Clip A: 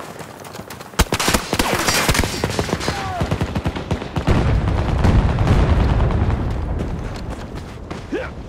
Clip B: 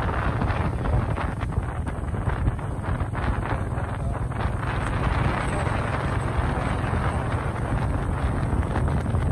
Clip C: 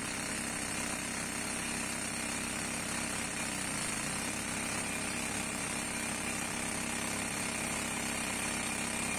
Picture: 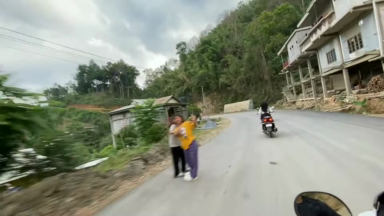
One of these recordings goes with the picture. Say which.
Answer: B